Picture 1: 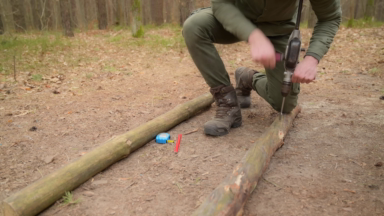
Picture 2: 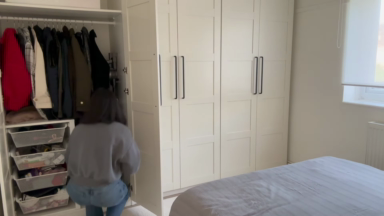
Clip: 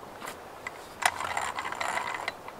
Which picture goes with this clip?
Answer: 1